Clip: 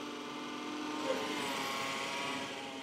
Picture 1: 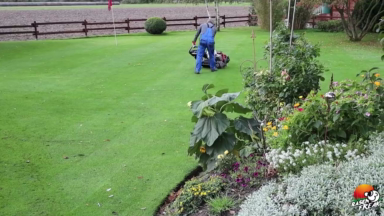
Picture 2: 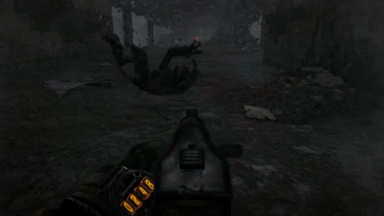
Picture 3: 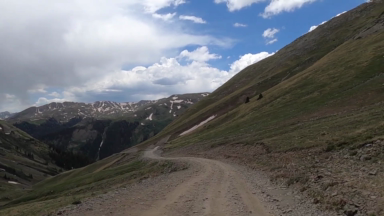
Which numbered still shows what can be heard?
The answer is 1